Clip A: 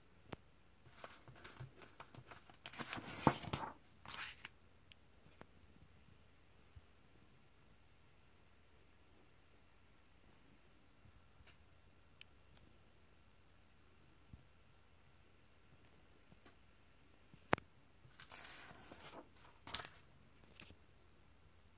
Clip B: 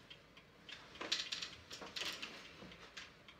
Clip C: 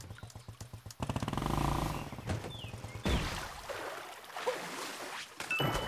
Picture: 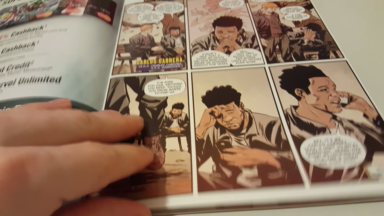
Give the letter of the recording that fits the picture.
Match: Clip A